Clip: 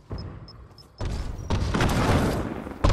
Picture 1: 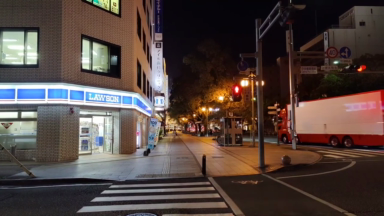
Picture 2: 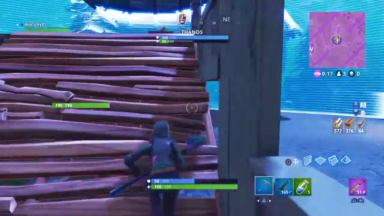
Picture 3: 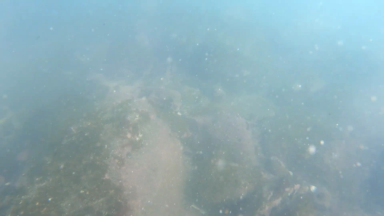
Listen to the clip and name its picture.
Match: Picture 2